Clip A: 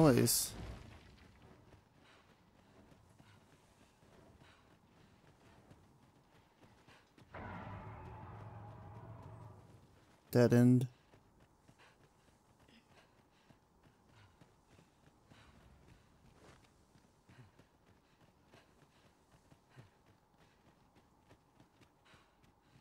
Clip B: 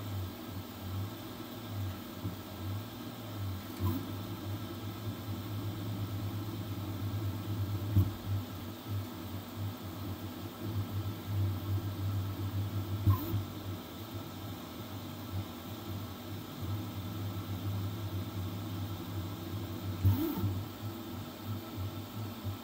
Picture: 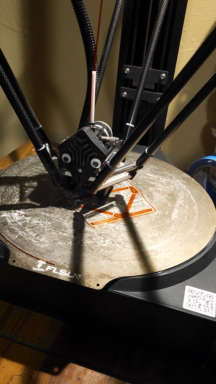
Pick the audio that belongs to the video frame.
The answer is B